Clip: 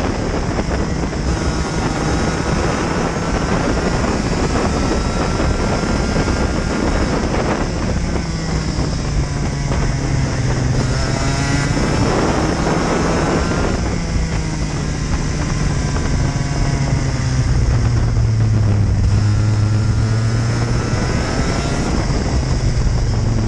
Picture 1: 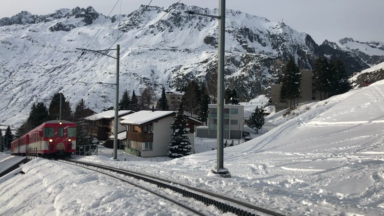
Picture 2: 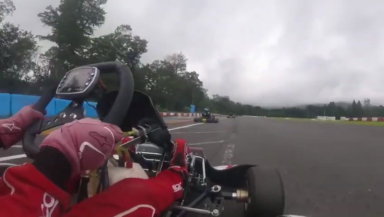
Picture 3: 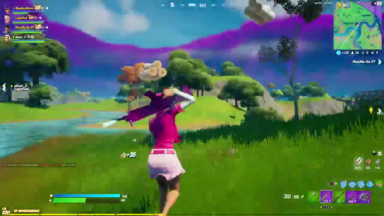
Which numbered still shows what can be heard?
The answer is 2